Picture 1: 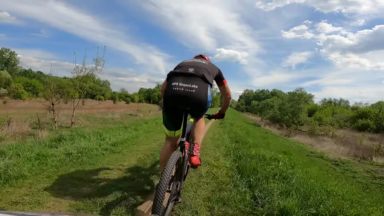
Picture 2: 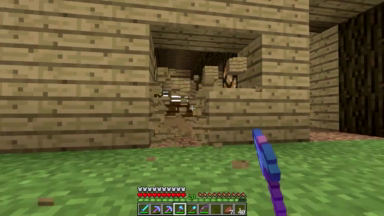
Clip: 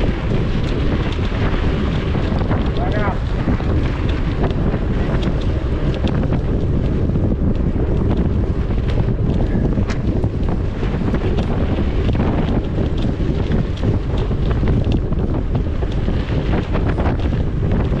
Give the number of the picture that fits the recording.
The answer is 1